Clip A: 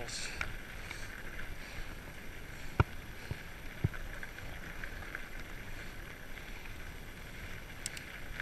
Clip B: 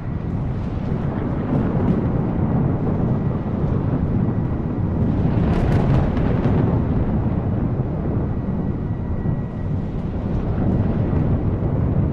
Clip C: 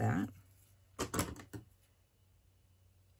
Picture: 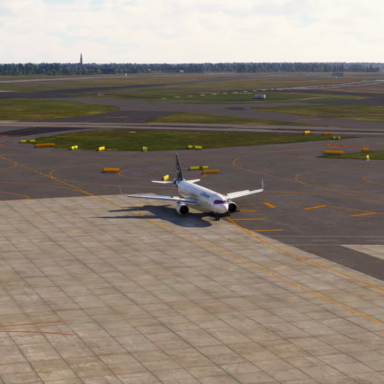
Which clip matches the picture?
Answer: B